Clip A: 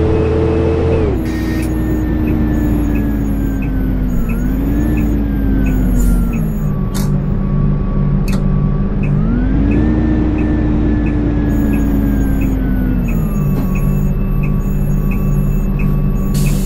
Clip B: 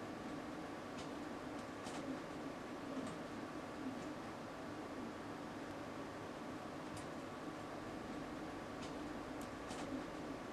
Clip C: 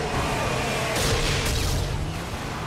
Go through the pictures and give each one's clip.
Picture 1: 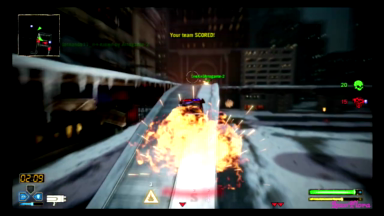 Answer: C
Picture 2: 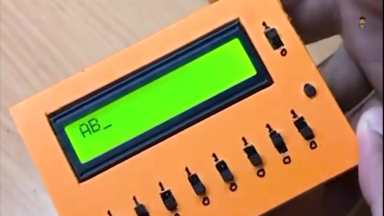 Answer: B